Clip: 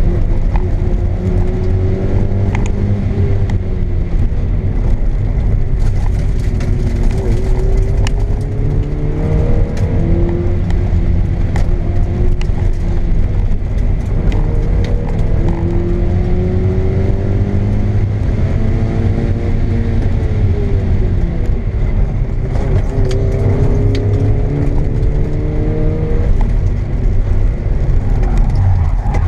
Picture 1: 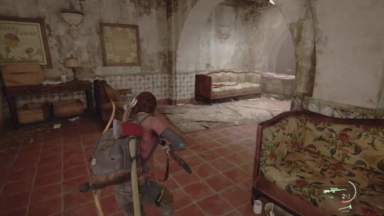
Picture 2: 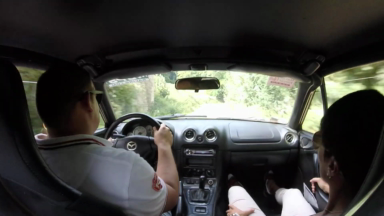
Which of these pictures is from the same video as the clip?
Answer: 2